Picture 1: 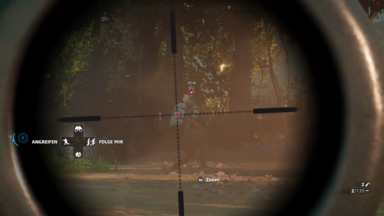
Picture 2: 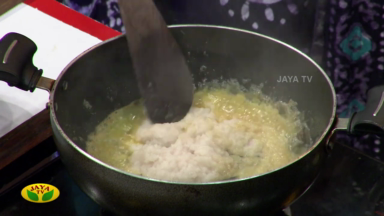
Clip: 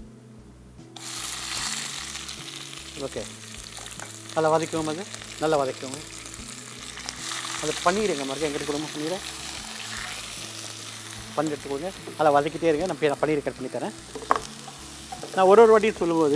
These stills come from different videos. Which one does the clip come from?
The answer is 2